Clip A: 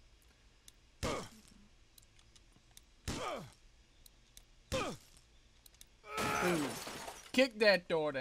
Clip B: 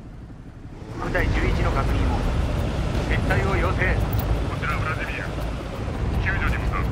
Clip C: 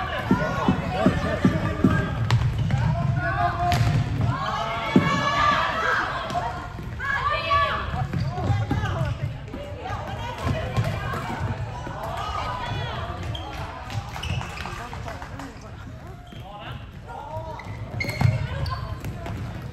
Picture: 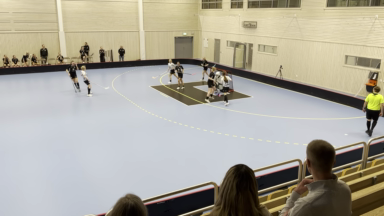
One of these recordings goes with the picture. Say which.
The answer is C